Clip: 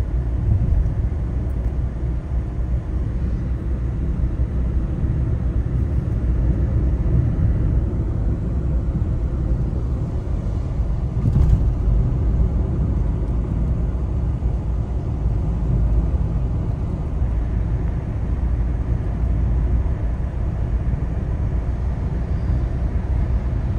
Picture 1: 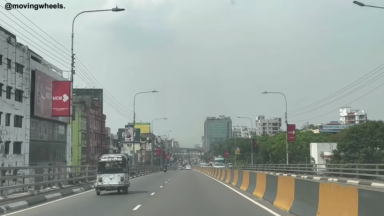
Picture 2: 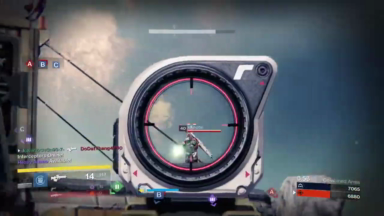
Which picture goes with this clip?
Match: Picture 1